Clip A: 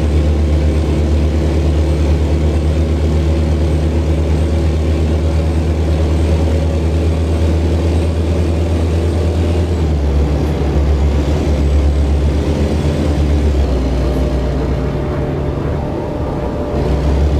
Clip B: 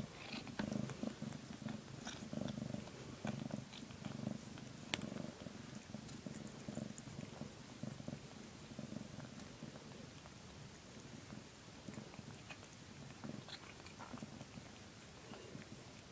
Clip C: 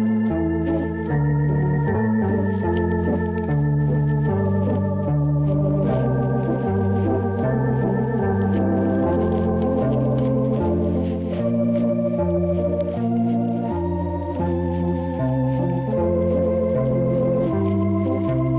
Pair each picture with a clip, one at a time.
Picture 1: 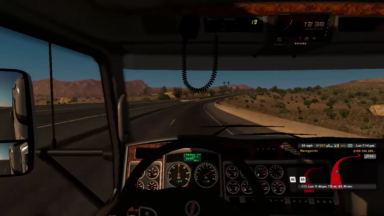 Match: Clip A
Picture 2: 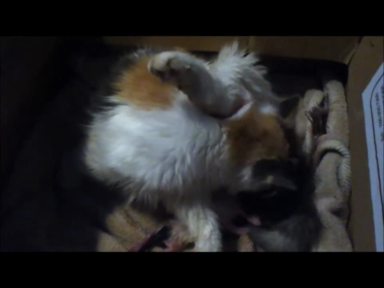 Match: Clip B